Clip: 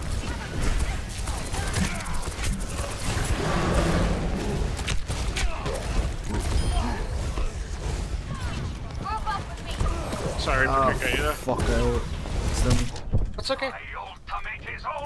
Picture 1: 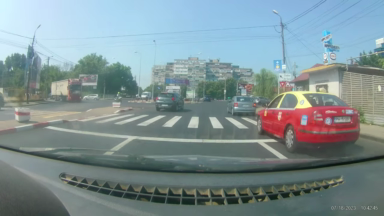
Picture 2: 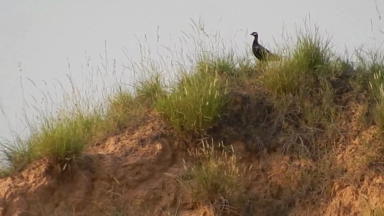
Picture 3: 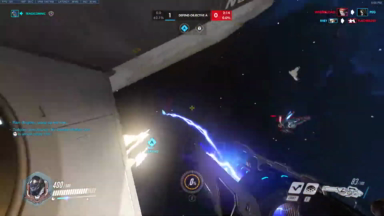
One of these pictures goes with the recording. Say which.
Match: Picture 3